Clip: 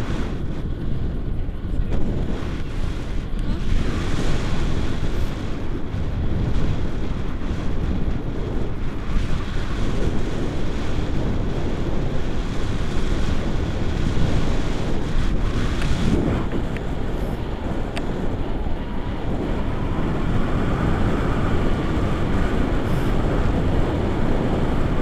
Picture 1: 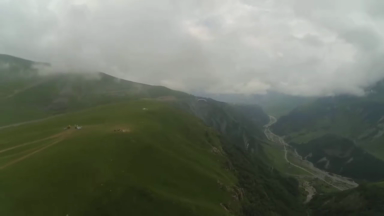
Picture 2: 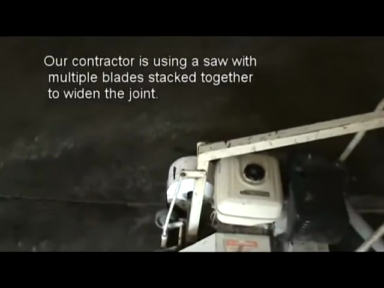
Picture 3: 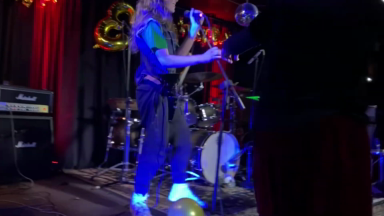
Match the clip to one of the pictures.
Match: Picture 1